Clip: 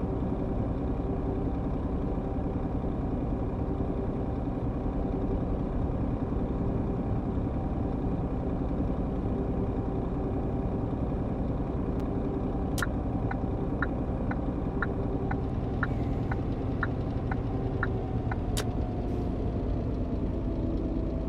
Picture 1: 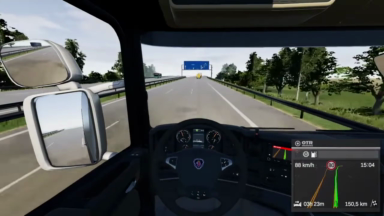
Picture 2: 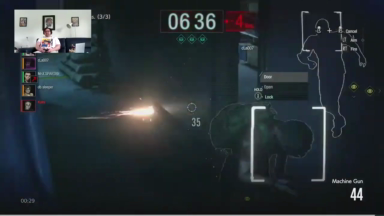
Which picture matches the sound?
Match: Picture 1